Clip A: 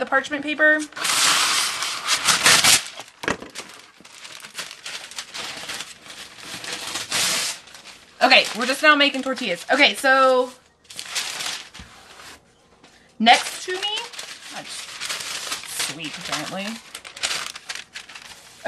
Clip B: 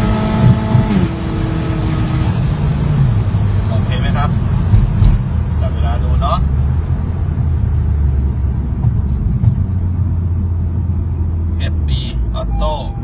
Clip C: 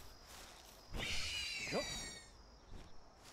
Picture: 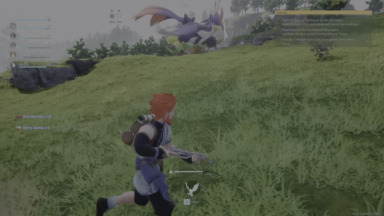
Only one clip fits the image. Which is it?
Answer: C